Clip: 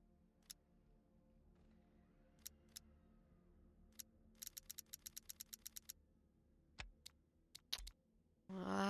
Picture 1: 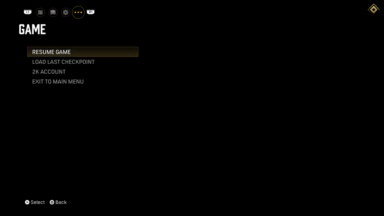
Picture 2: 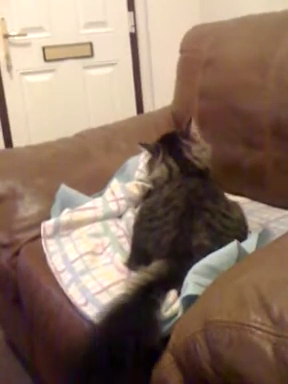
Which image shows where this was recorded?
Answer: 1